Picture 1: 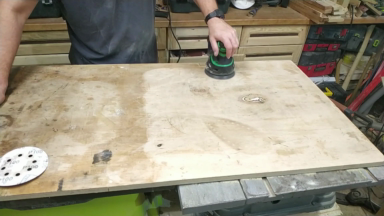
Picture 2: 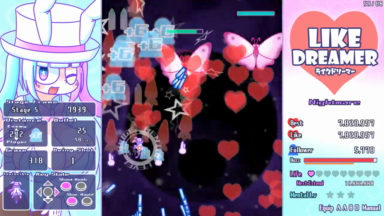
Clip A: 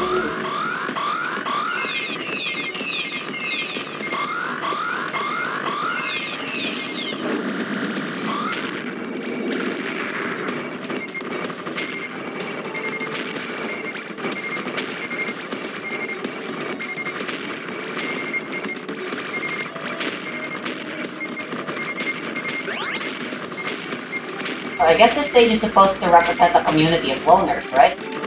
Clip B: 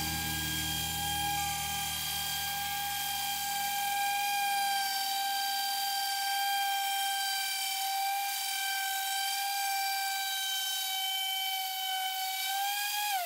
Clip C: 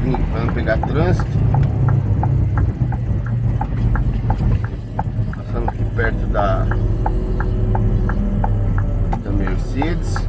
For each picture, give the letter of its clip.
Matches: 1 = B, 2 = A